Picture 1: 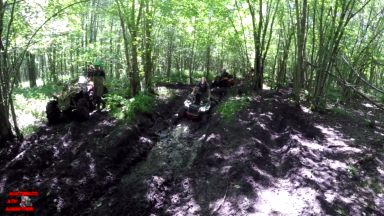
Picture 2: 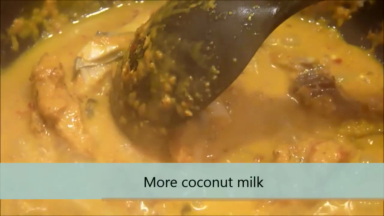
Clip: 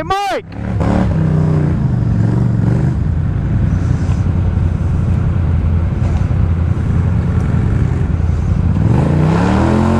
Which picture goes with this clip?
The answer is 1